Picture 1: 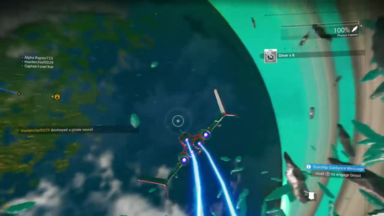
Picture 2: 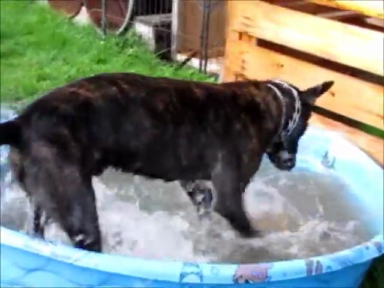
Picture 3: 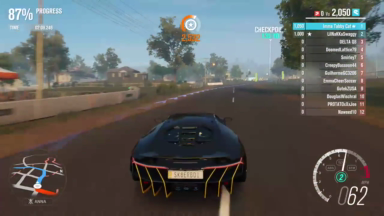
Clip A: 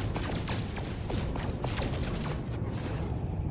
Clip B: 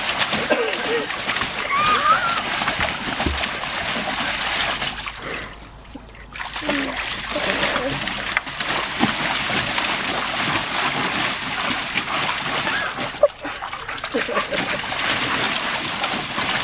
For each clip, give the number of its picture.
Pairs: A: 1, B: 2